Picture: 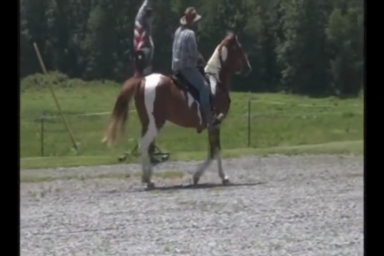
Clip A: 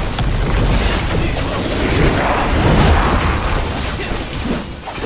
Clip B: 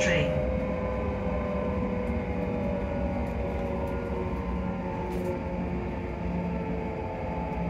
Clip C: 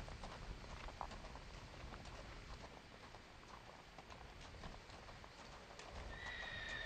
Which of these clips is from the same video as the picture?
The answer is C